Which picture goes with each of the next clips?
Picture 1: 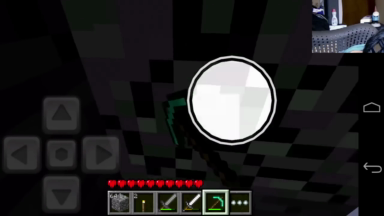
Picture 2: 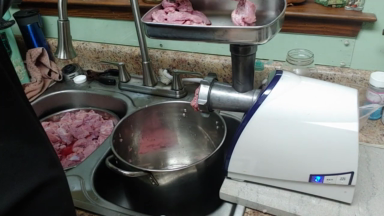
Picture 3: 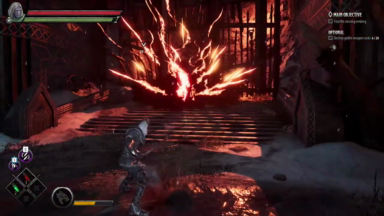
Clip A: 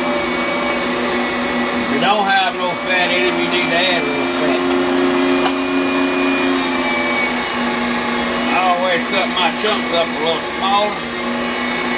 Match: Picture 2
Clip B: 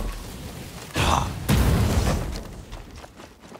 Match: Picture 3